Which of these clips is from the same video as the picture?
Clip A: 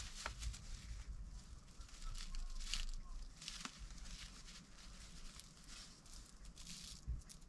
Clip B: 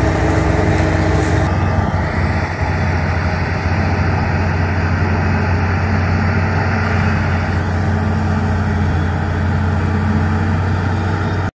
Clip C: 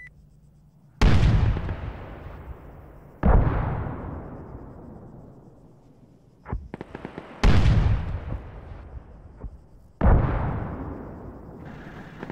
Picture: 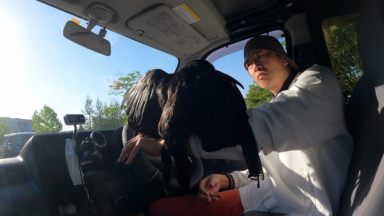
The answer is A